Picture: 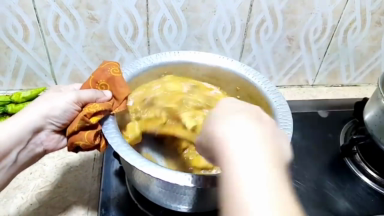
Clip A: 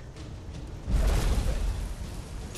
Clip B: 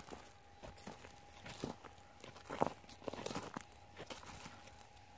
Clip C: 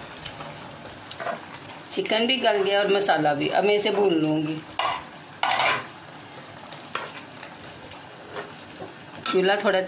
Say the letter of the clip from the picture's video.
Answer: C